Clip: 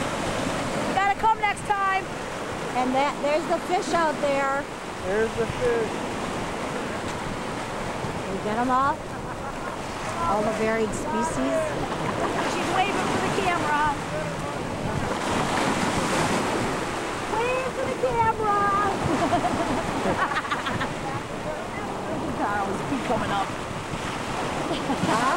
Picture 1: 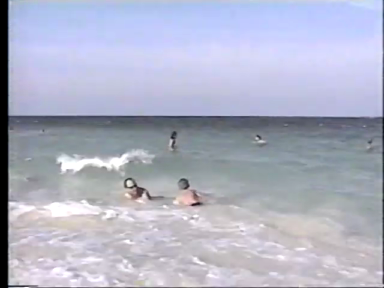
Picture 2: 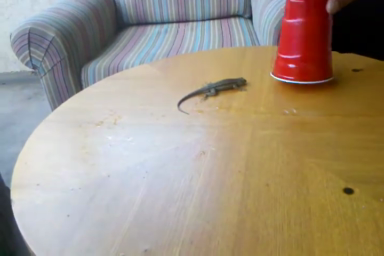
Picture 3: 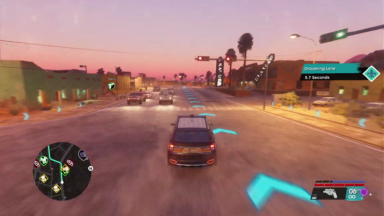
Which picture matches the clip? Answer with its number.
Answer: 1